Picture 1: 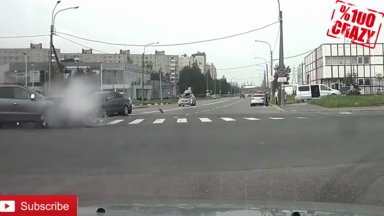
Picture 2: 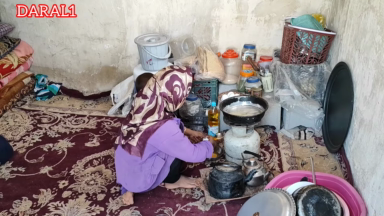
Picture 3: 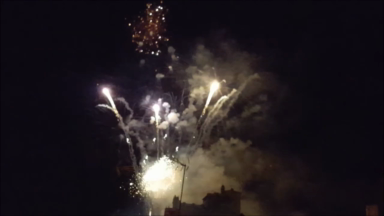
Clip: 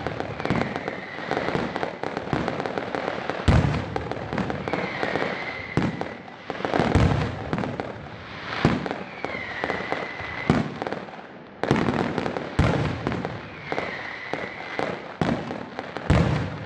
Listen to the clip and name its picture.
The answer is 3